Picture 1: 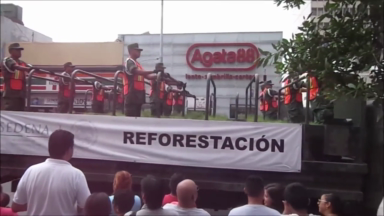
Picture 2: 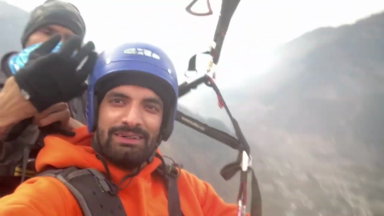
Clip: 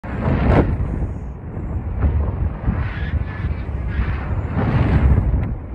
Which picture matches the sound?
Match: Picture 2